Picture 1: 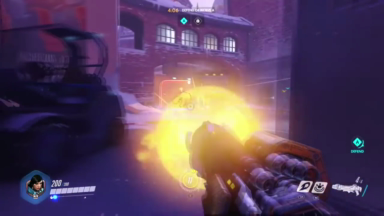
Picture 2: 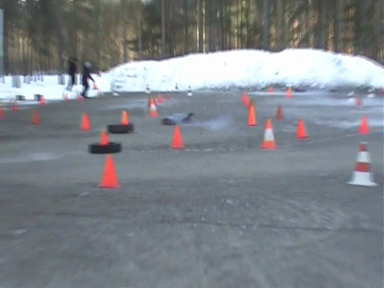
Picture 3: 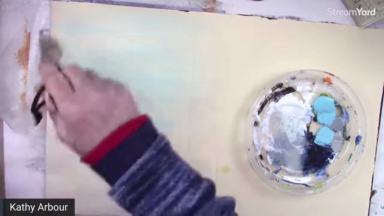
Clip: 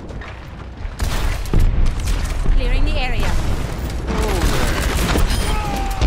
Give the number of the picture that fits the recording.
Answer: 1